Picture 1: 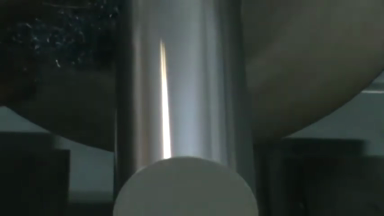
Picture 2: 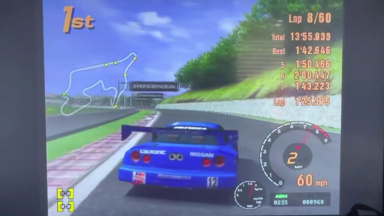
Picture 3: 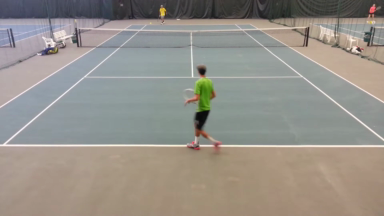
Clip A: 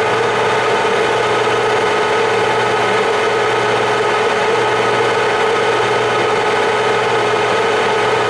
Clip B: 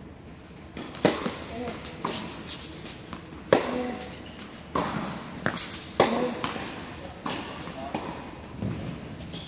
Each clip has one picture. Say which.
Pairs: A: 1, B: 3